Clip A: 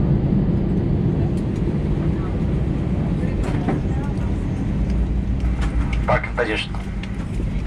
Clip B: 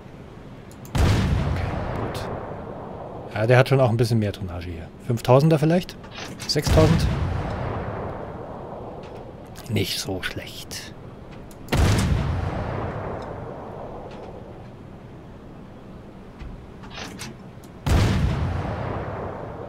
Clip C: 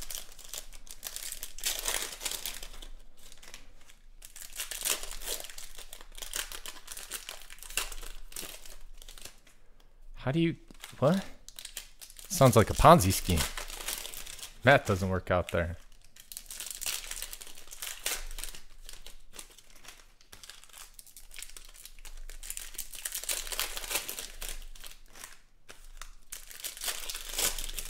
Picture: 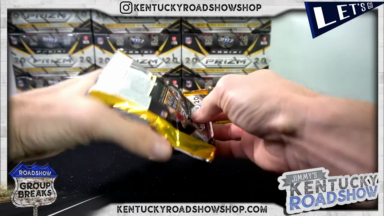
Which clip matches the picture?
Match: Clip C